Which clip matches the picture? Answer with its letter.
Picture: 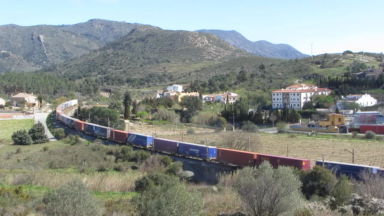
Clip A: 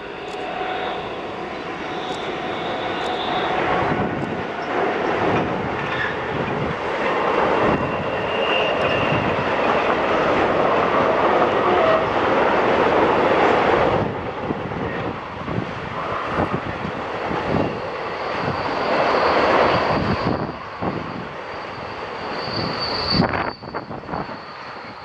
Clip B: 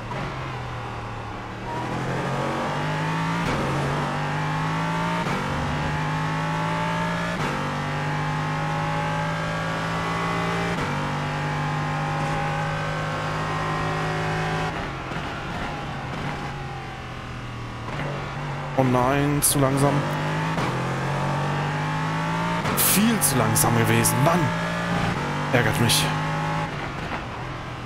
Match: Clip A